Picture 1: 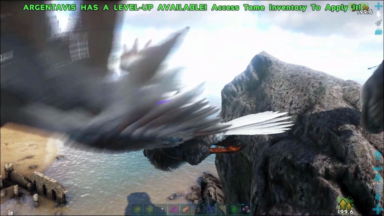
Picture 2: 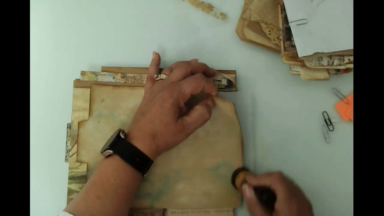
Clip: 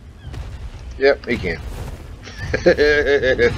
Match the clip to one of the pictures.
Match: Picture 1